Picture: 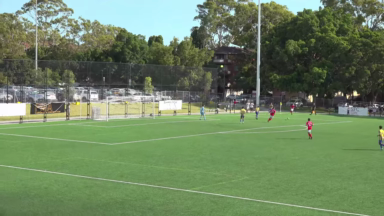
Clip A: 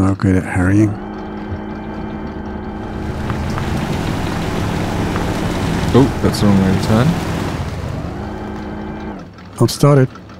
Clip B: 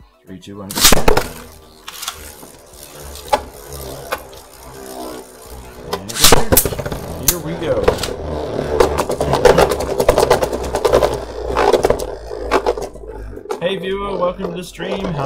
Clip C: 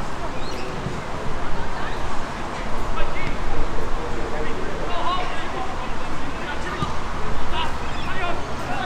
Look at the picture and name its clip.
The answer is C